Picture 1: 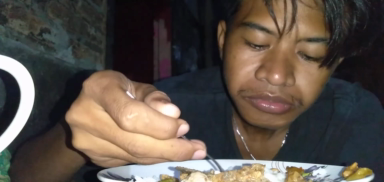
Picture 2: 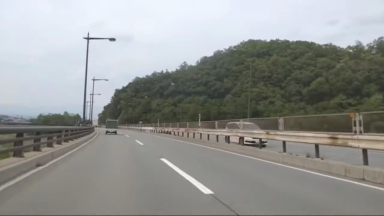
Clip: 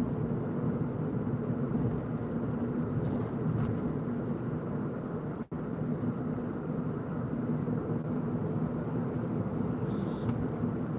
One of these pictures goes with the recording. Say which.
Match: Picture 2